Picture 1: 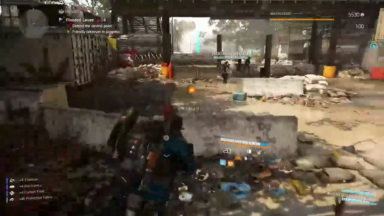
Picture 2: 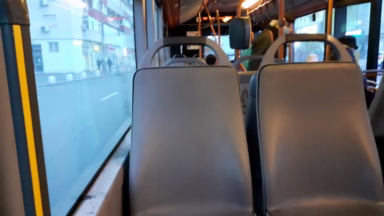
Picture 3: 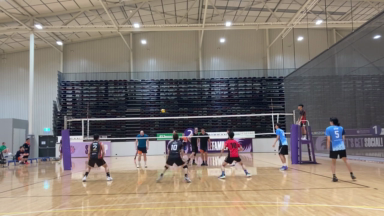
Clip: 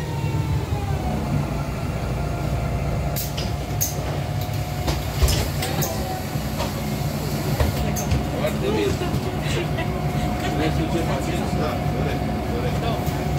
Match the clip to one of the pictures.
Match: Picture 2